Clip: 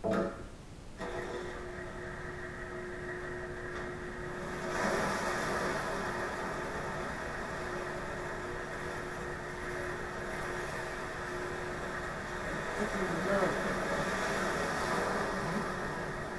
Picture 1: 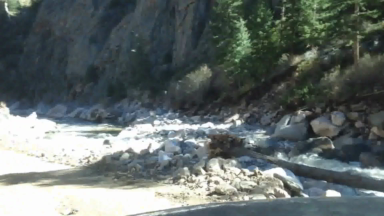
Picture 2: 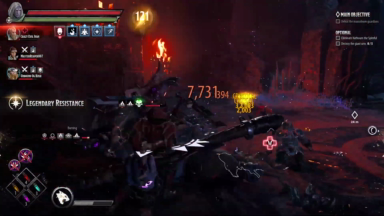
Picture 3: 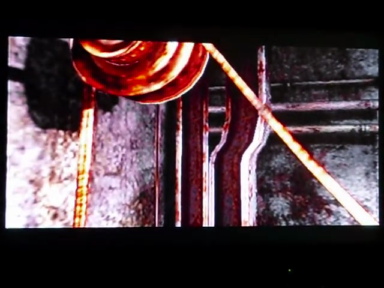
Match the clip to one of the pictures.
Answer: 3